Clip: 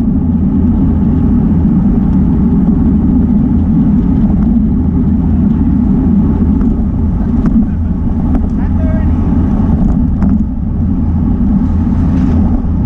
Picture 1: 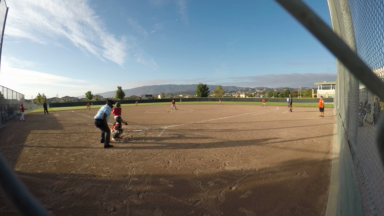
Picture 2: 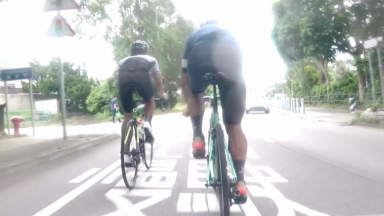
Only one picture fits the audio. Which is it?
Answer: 2